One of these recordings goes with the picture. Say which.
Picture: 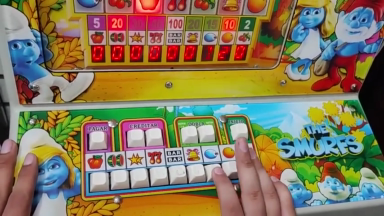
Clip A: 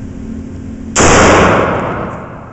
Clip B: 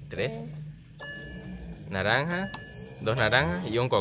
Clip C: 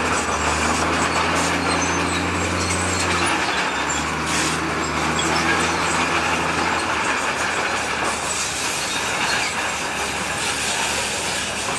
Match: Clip B